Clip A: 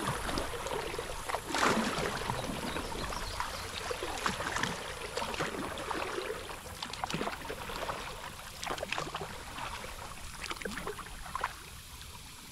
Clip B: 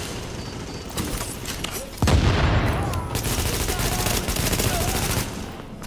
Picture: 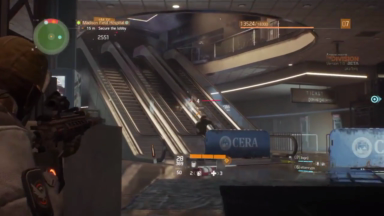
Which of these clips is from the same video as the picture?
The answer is B